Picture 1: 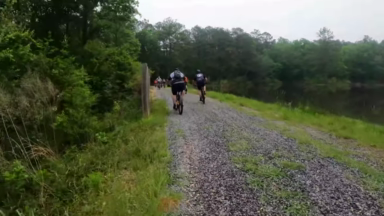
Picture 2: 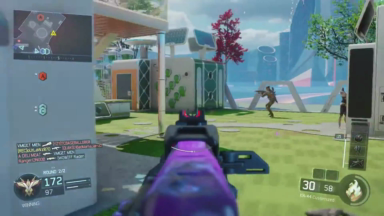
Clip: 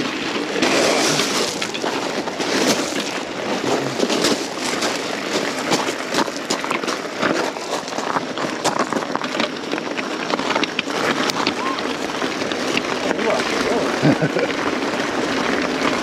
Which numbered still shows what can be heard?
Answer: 1